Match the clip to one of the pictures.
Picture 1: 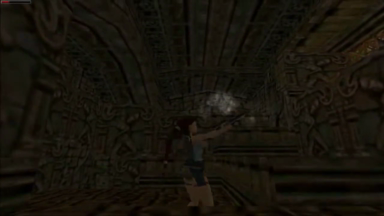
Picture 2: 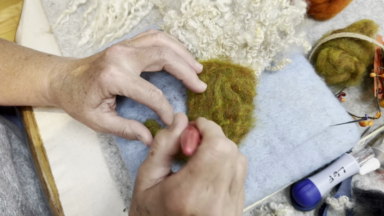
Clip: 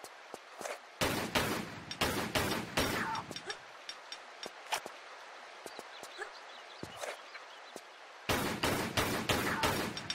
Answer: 1